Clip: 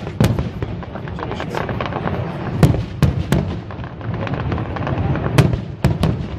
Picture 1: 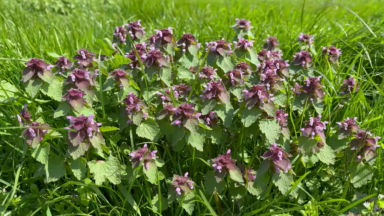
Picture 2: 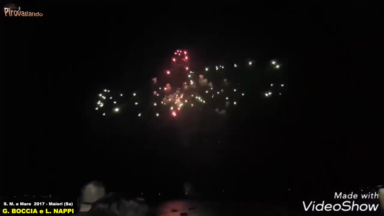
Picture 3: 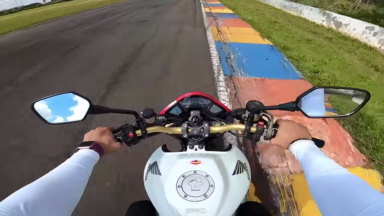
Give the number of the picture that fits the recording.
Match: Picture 2